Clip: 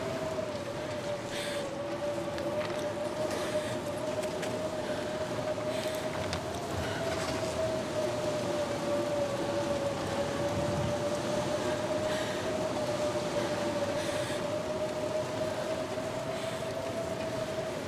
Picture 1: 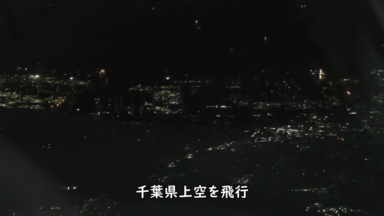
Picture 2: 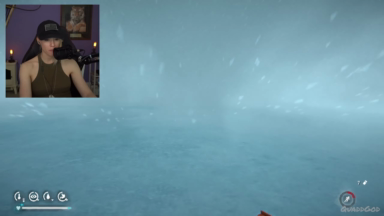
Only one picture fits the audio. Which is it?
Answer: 2